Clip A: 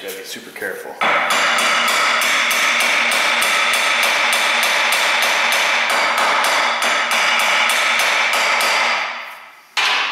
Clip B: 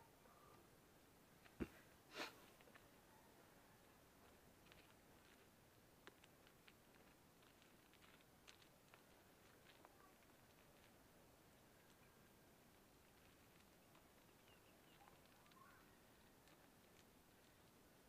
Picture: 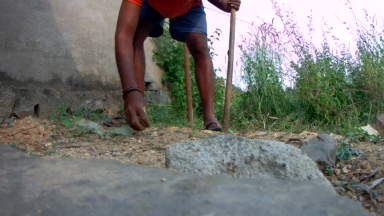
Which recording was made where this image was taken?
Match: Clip B